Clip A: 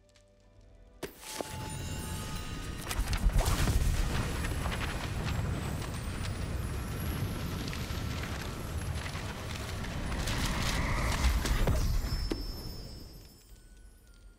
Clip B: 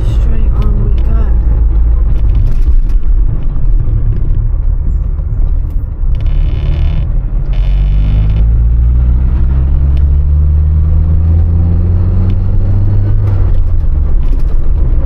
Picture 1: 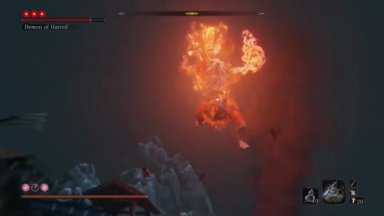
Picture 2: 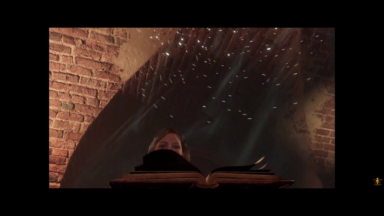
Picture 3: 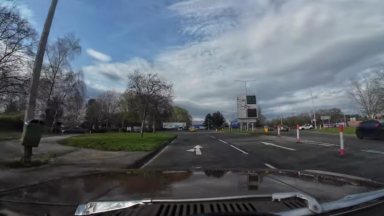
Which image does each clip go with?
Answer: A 2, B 3